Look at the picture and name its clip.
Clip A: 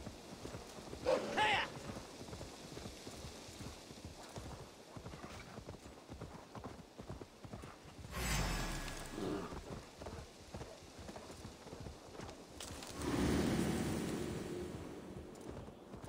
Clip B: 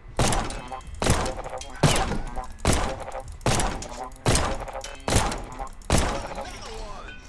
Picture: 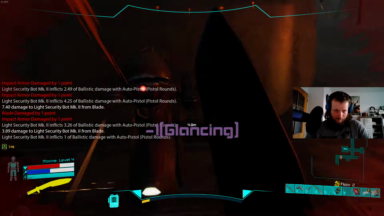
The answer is B